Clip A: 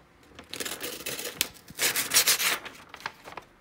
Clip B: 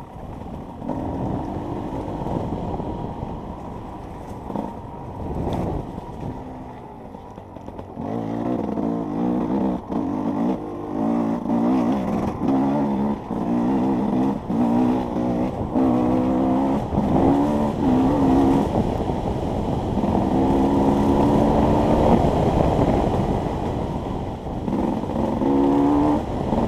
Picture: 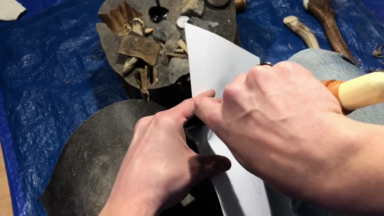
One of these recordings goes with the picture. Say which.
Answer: A